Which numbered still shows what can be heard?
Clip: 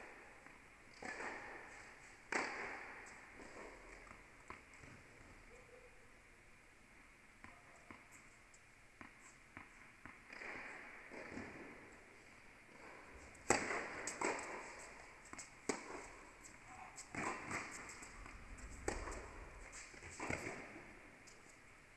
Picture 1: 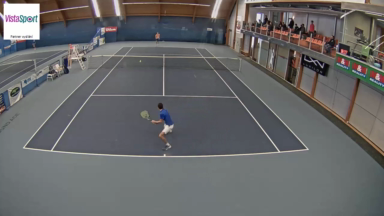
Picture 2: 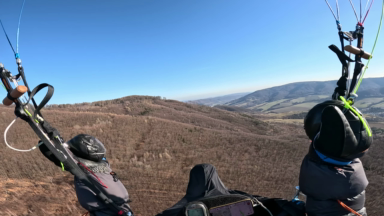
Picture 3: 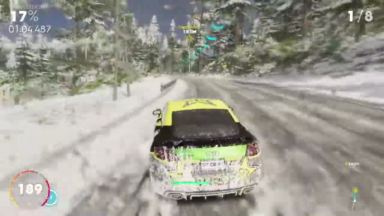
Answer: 1